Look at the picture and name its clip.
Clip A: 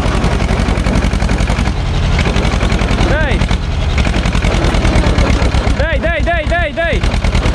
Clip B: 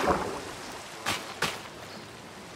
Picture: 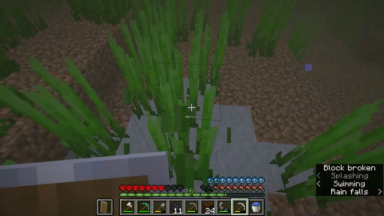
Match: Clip B